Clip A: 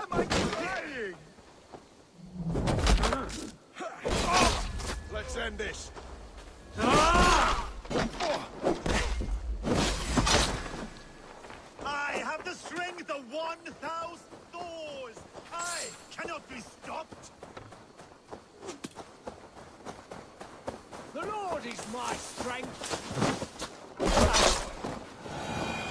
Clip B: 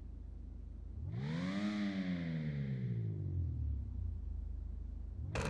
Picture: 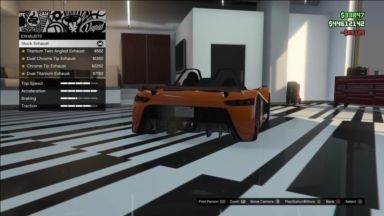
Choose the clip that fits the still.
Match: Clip B